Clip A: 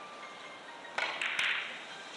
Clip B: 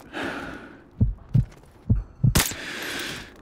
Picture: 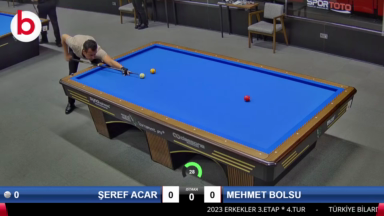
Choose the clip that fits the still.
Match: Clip A